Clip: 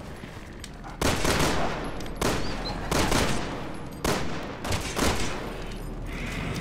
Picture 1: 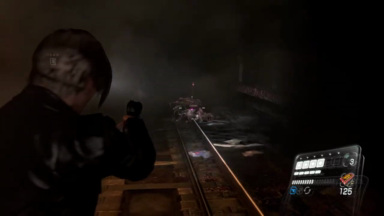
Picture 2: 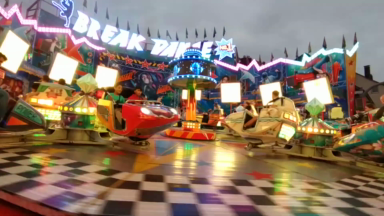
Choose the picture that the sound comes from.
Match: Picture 1